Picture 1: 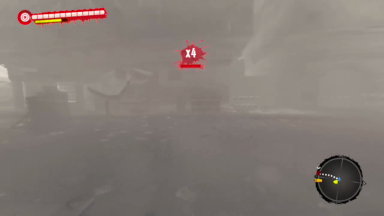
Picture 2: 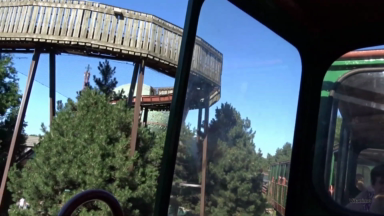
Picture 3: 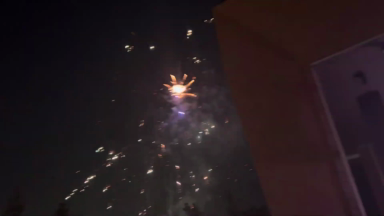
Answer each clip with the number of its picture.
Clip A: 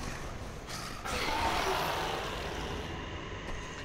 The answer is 1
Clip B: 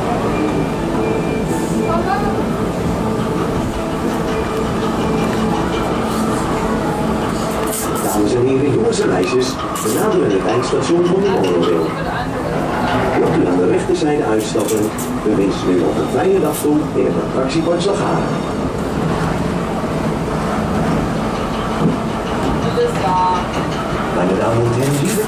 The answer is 2